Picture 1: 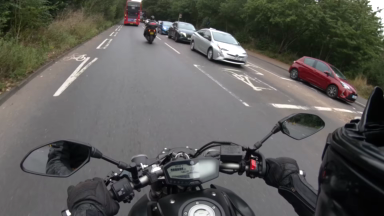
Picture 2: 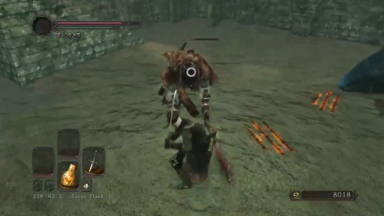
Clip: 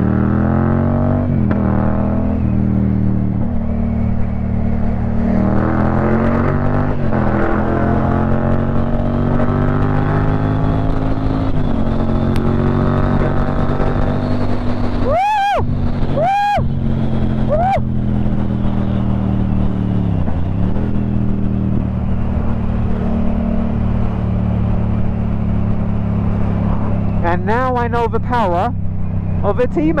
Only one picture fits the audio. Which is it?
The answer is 1